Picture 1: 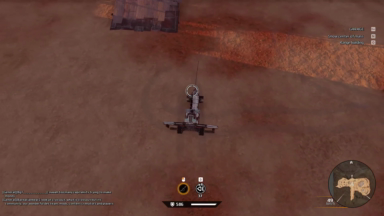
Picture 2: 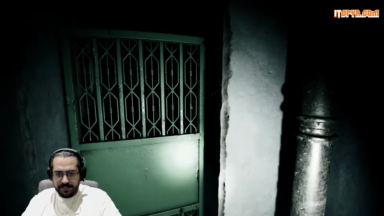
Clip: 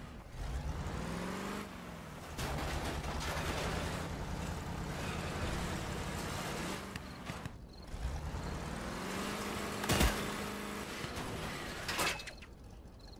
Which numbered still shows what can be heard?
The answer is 1